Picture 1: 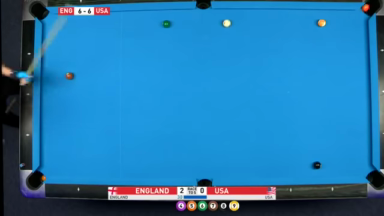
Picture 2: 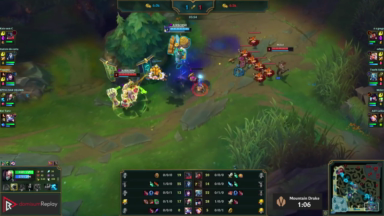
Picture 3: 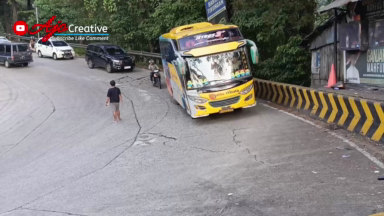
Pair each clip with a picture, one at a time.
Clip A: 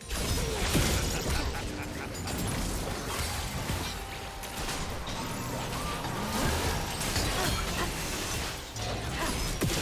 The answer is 2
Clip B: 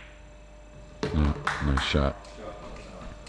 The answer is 1